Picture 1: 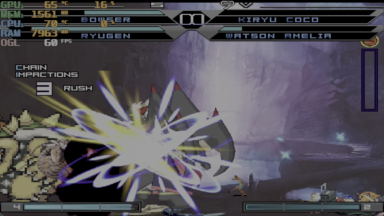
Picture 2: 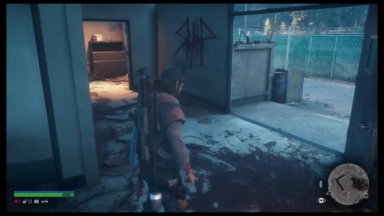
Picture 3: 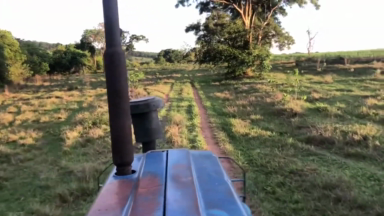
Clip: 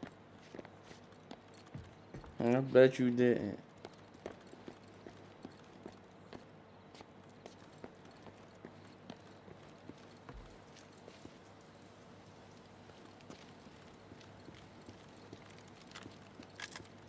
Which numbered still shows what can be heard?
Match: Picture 2